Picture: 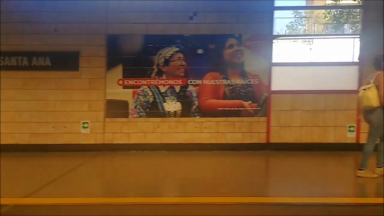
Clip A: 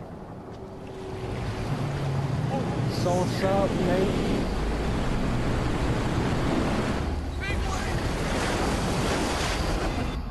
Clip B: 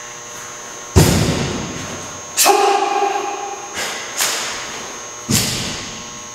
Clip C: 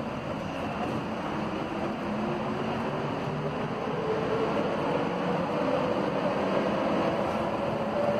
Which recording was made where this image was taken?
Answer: C